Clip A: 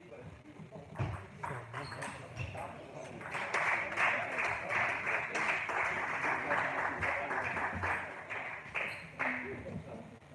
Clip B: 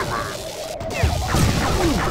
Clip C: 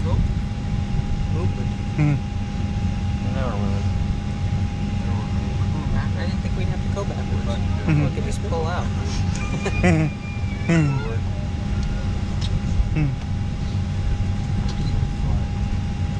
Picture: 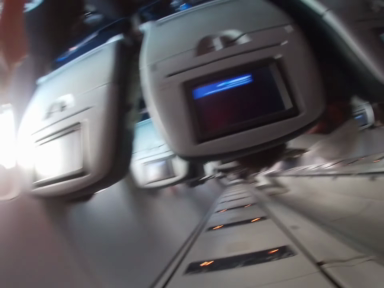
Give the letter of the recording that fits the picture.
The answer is C